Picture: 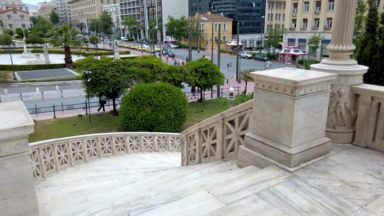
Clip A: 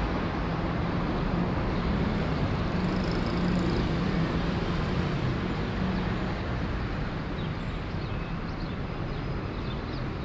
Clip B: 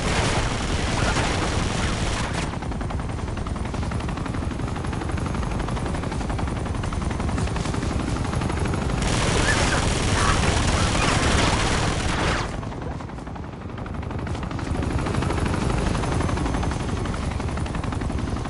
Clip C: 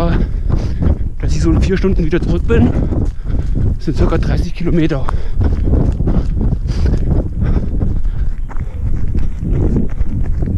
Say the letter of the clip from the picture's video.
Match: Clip A